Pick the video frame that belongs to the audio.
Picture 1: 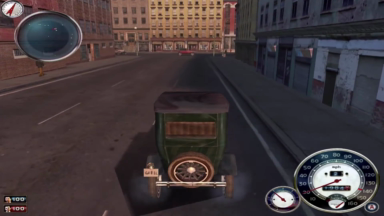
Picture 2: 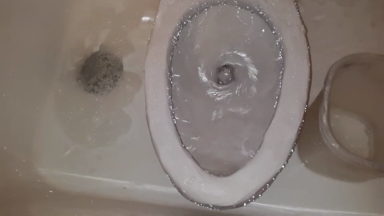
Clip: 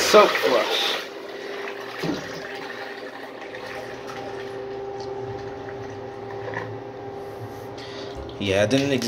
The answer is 2